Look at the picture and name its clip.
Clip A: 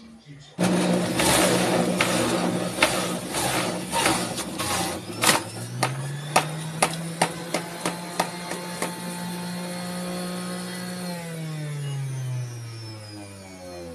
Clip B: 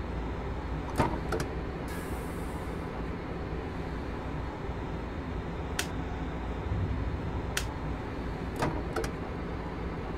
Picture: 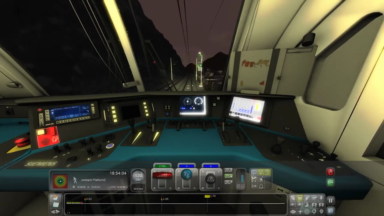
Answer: B